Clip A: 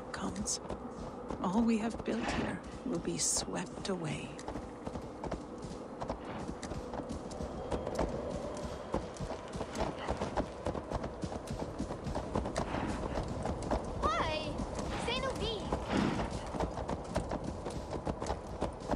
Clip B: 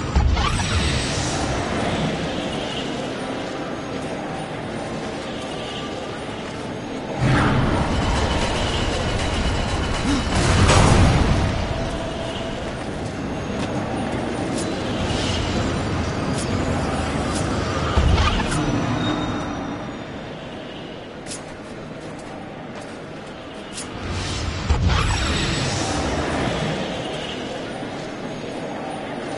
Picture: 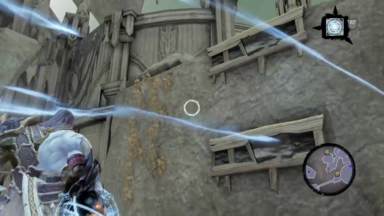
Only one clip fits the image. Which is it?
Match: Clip B